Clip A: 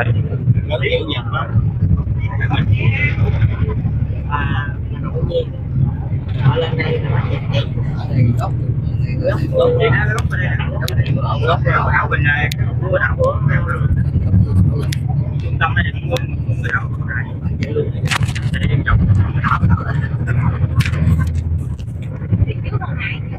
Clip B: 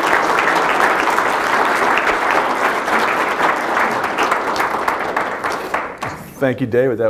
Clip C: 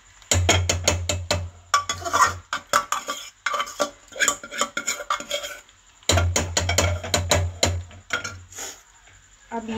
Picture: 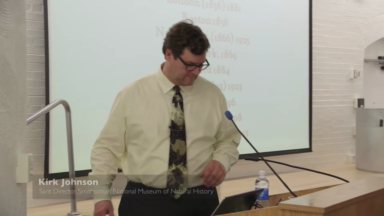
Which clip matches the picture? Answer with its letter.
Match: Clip B